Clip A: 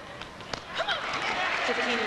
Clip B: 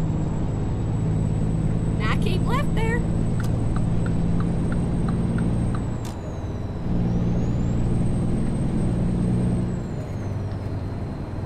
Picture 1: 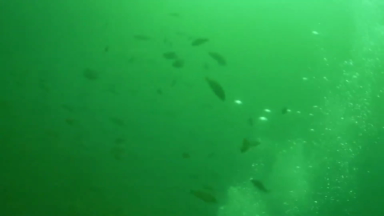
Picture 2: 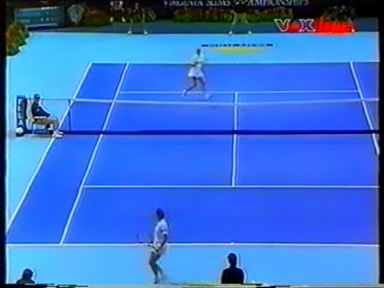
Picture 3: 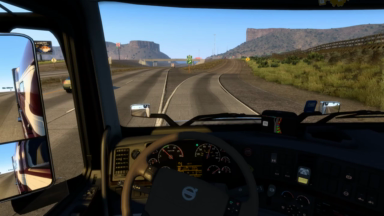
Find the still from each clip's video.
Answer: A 2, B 3